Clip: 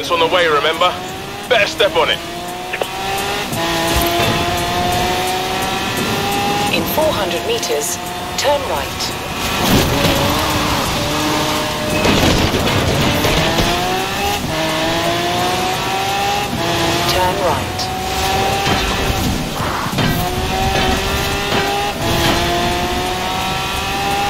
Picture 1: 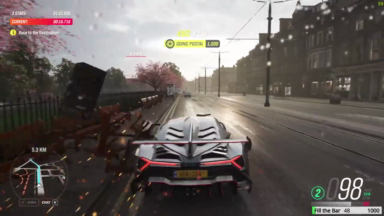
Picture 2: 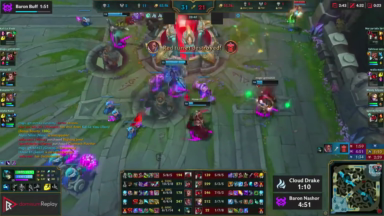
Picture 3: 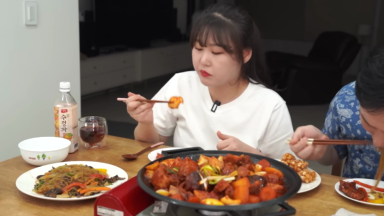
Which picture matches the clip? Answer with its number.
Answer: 1